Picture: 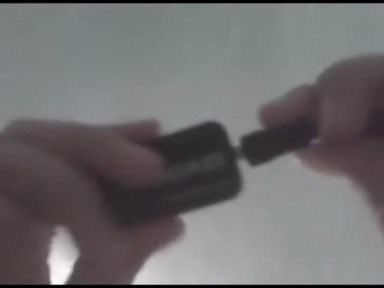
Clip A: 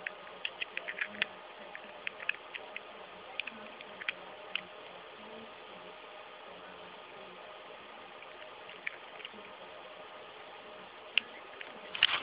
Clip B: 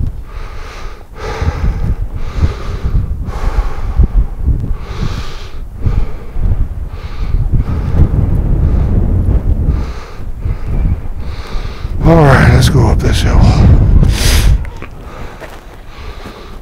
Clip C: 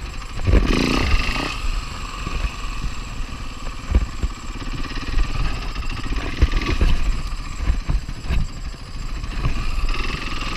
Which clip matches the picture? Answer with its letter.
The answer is A